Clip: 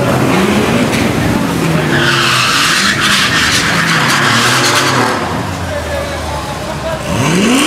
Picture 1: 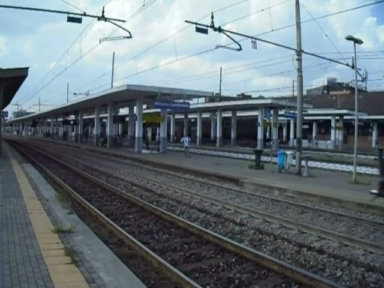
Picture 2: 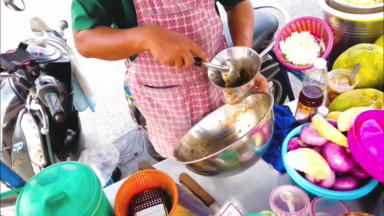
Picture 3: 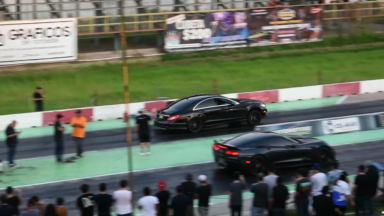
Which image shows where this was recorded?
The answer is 3